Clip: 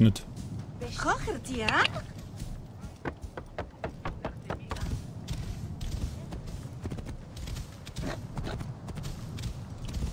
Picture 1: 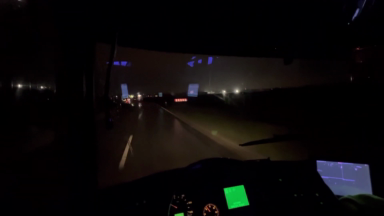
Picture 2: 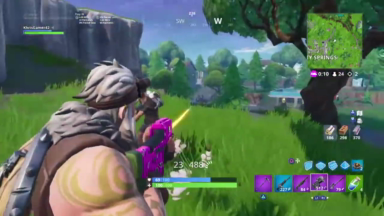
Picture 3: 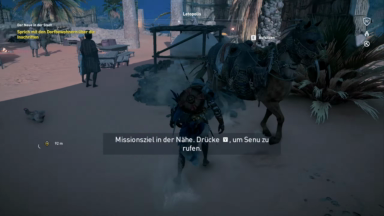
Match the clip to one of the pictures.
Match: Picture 3